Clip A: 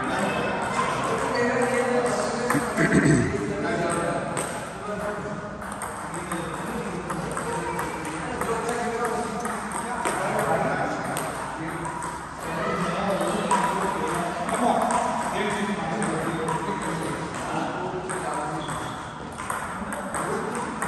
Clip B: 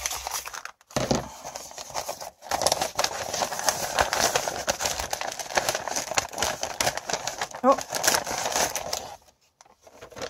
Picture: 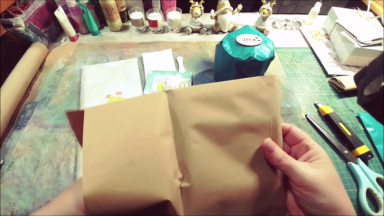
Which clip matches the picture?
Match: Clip B